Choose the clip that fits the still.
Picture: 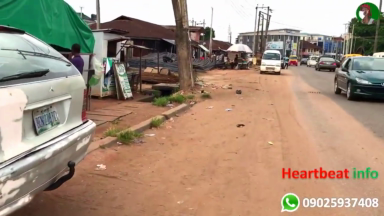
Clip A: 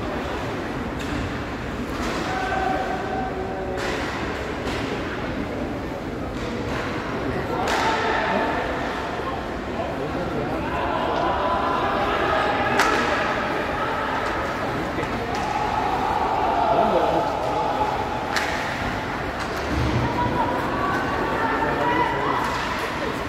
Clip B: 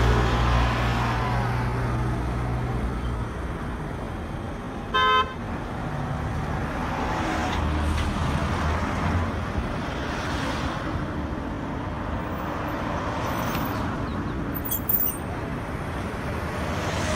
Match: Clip B